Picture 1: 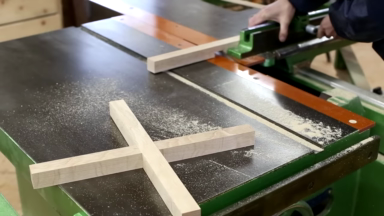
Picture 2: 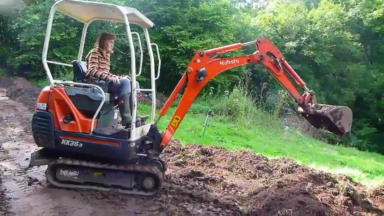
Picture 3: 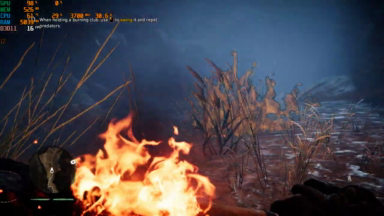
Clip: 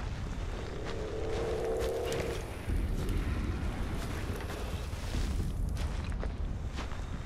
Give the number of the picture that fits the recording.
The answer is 3